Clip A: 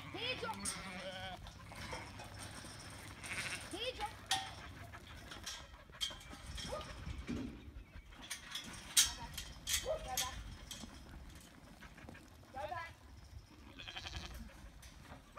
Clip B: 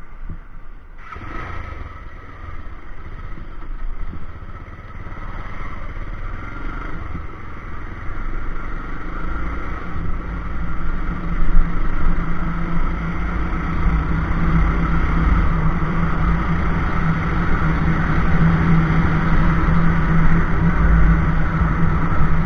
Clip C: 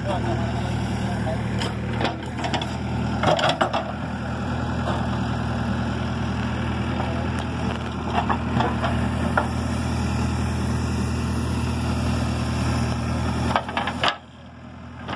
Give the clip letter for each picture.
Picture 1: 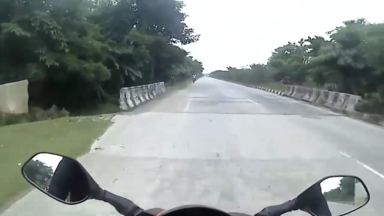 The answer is B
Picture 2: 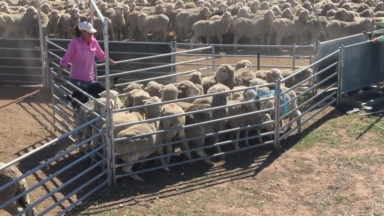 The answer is A